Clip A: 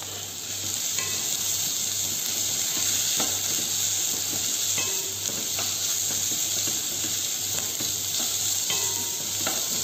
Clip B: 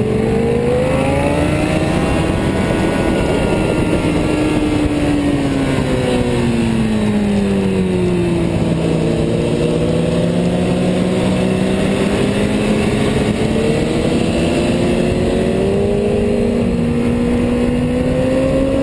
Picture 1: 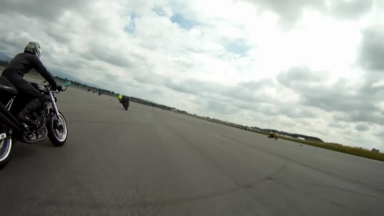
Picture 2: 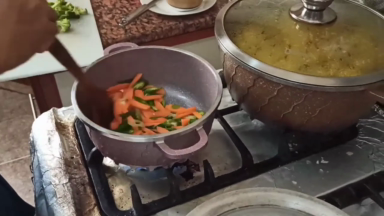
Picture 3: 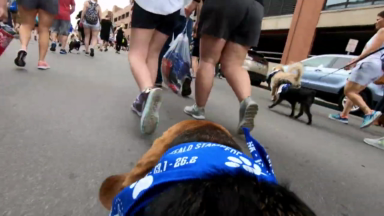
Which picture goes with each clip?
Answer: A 2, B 1